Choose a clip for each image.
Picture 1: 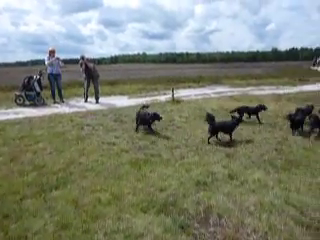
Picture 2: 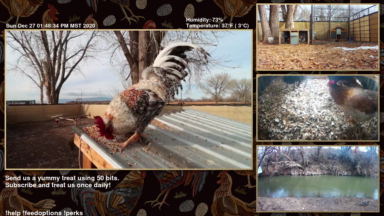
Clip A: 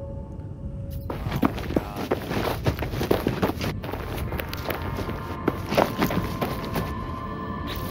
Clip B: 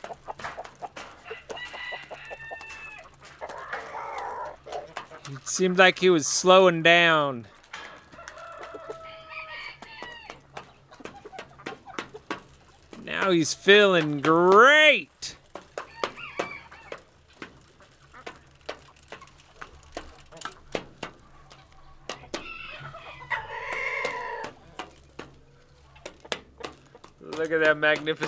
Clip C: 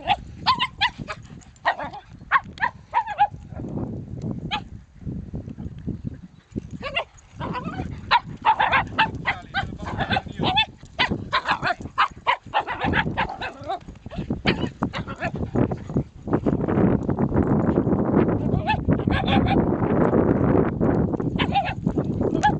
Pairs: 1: C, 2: B